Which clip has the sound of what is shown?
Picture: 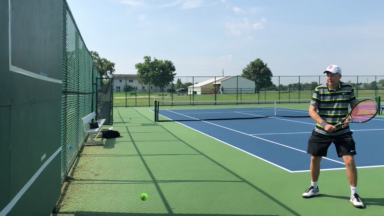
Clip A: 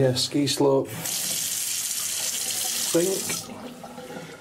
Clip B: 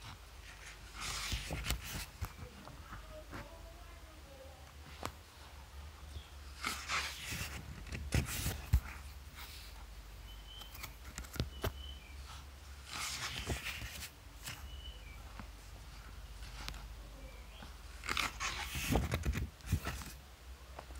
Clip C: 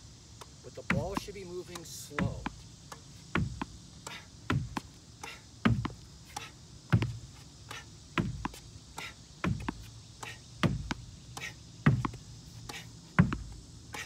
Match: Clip C